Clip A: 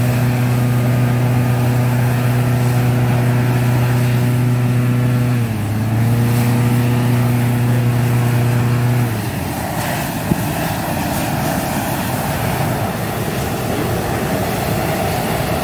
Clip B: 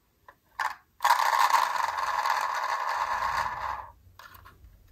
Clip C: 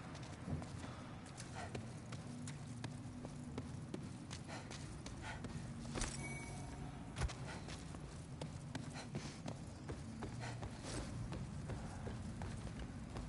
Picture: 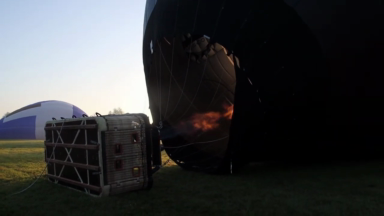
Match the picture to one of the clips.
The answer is A